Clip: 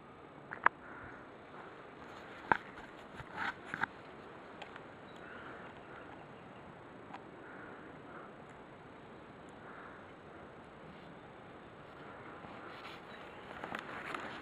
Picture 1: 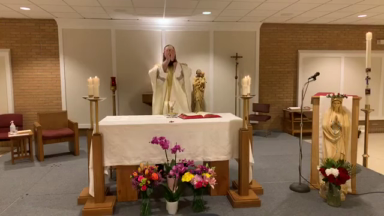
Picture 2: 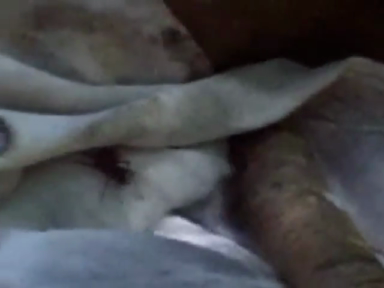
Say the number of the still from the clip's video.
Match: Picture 2